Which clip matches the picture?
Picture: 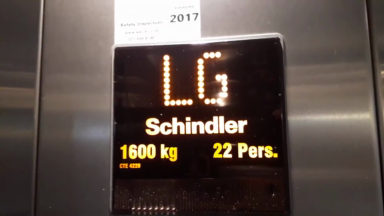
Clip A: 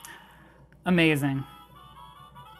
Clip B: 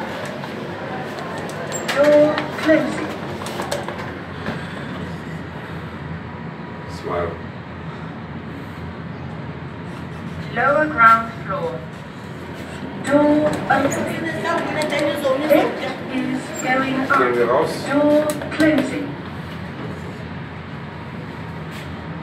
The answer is B